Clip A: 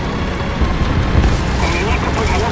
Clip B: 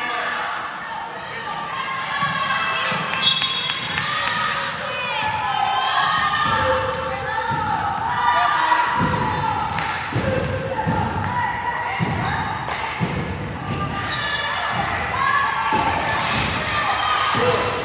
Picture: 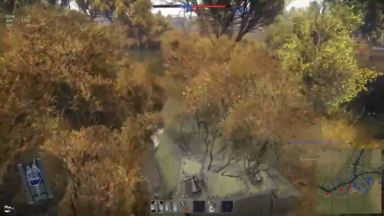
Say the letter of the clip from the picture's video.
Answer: A